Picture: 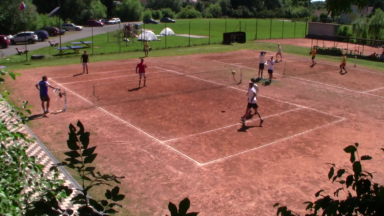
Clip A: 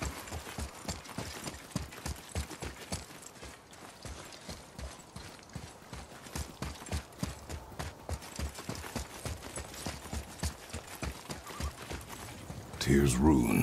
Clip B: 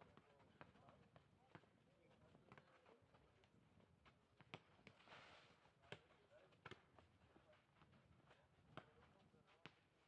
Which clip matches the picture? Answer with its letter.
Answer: B